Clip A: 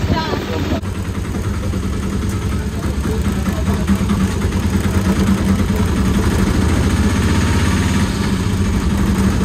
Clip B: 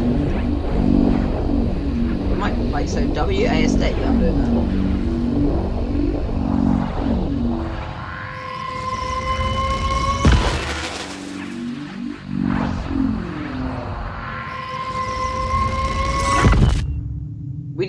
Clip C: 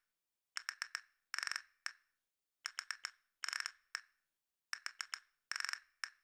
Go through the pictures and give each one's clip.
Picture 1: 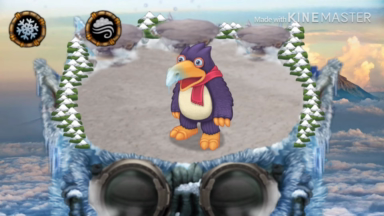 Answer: C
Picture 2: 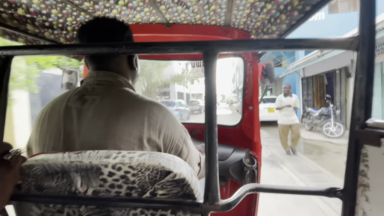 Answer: A